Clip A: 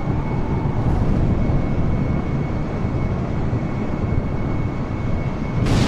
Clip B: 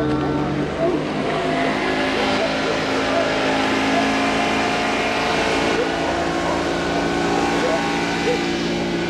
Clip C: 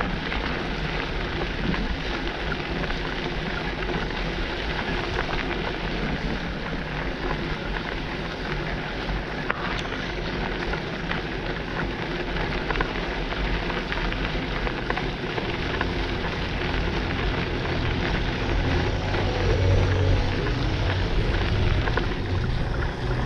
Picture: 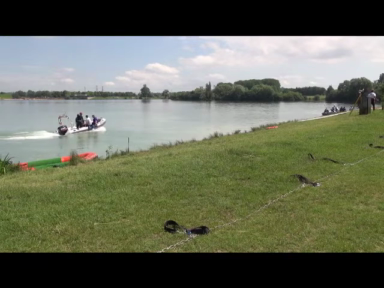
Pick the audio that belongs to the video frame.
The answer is B